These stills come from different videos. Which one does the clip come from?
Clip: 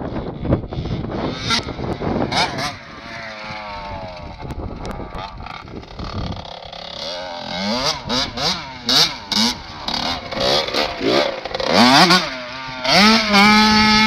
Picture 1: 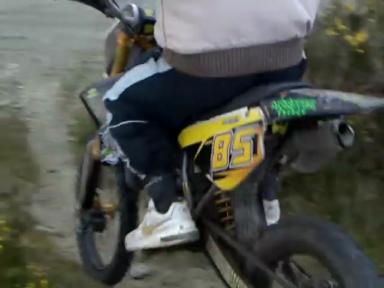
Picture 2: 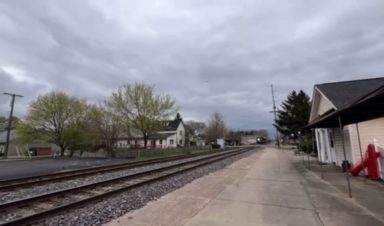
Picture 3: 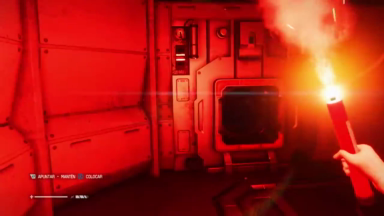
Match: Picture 1